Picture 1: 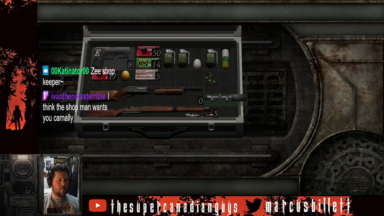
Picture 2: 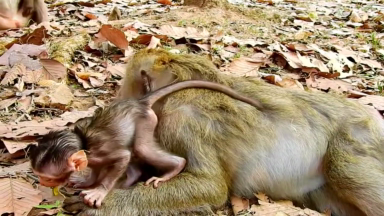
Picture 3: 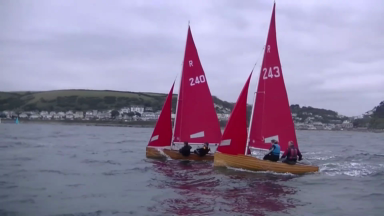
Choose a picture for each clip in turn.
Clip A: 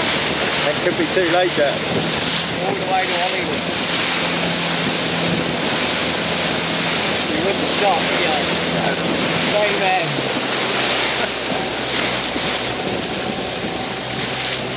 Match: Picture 3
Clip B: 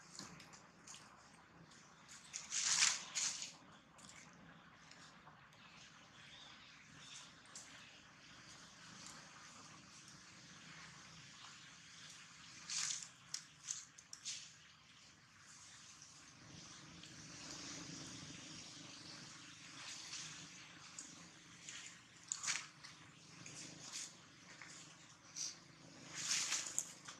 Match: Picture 2